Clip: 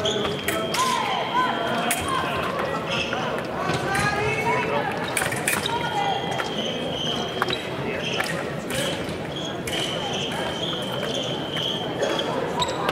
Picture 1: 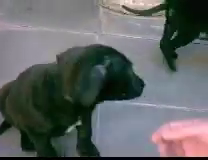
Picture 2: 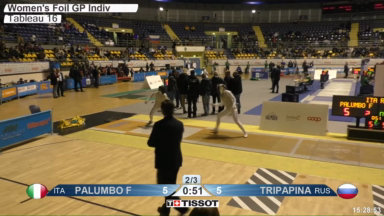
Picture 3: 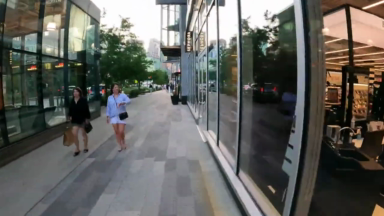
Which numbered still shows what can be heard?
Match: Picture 2